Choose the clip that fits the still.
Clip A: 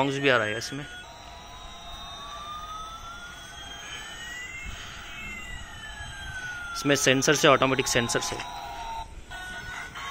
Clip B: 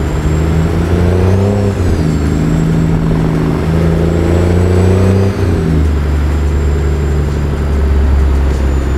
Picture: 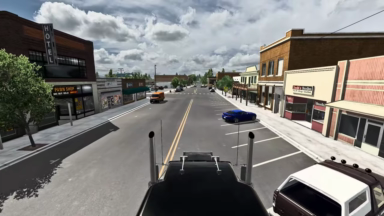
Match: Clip B